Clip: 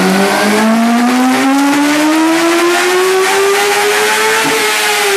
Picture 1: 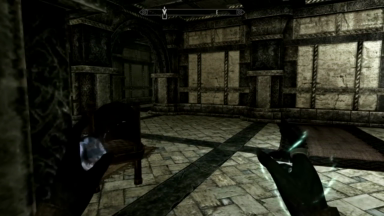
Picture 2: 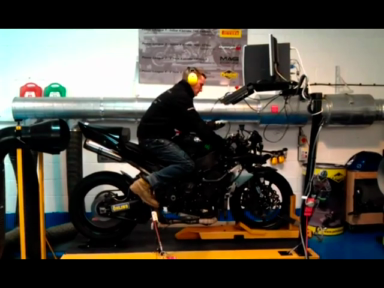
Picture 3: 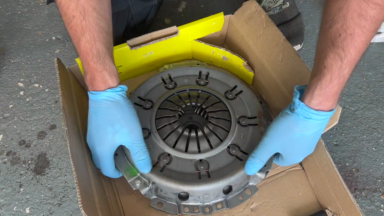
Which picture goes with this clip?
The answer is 2